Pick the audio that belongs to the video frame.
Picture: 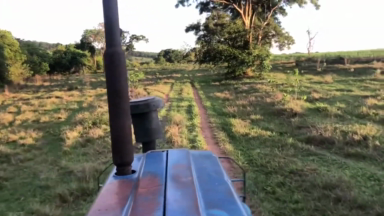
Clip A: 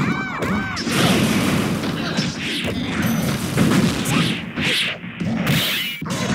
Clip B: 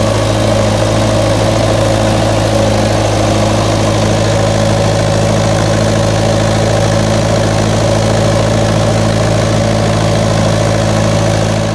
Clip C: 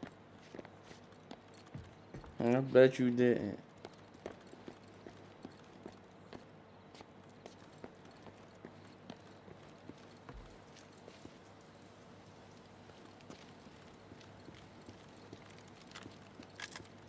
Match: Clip B